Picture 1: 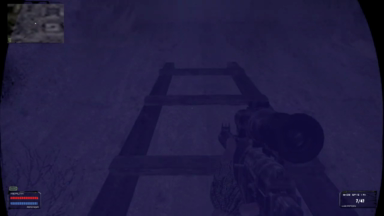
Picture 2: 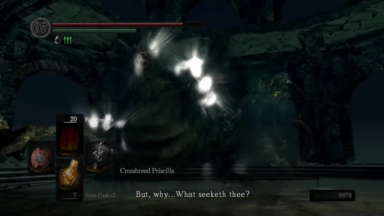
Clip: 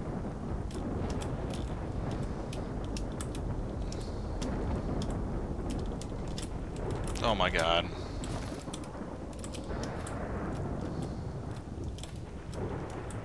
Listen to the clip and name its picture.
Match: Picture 1